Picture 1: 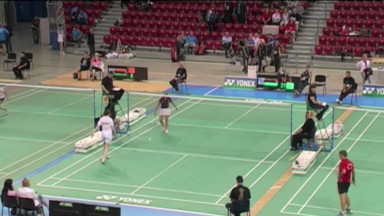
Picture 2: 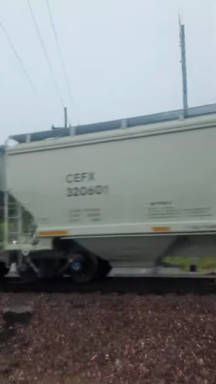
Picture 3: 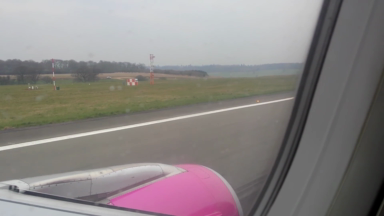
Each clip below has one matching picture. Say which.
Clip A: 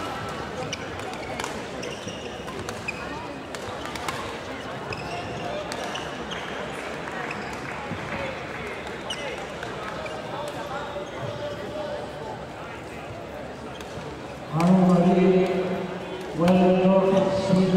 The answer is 1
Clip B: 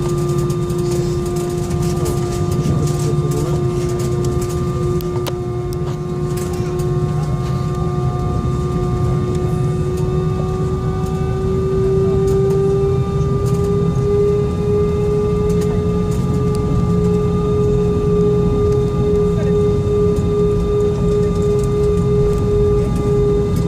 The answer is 3